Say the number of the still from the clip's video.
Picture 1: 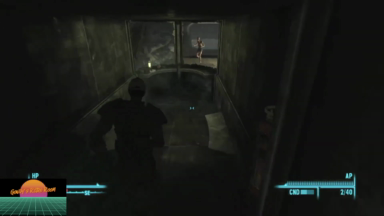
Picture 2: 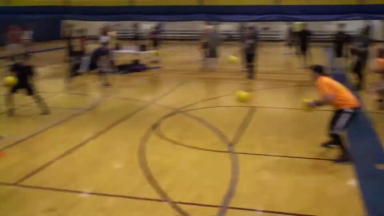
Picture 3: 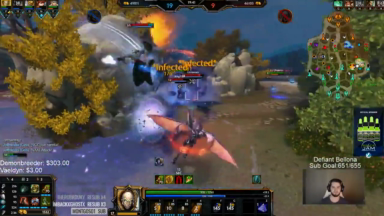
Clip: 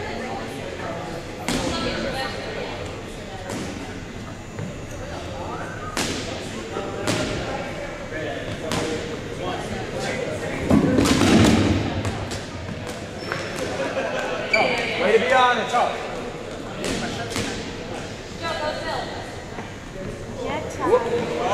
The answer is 2